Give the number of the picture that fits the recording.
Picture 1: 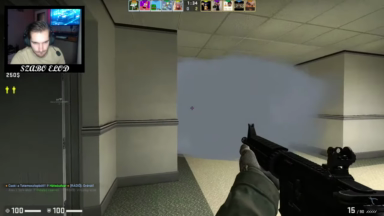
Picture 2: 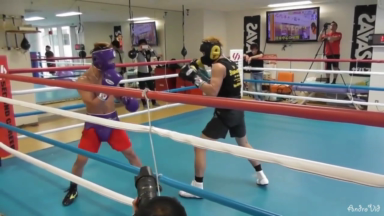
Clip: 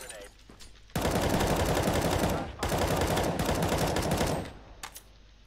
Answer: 1